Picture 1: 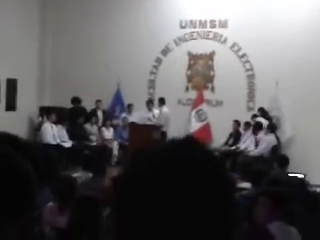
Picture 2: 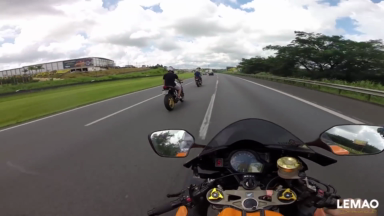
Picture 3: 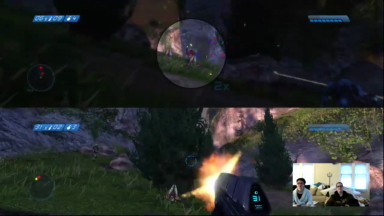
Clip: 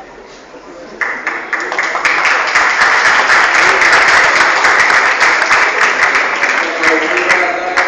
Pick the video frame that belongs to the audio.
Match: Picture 1